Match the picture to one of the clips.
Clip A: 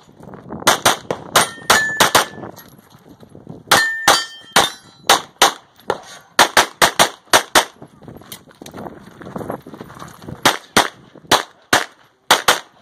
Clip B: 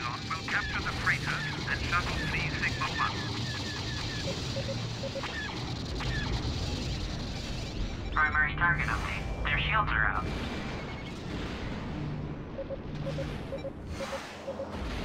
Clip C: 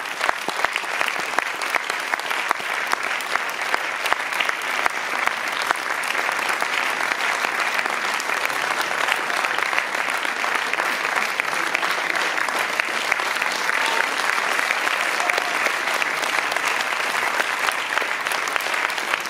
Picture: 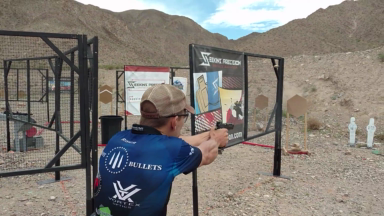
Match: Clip A